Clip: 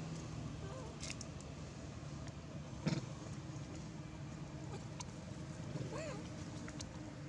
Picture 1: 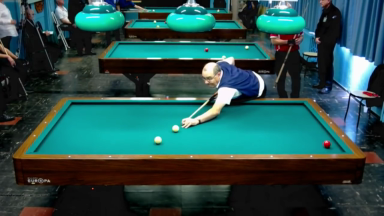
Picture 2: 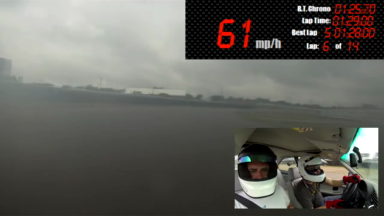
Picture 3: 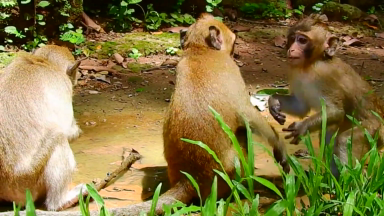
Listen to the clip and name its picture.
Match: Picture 3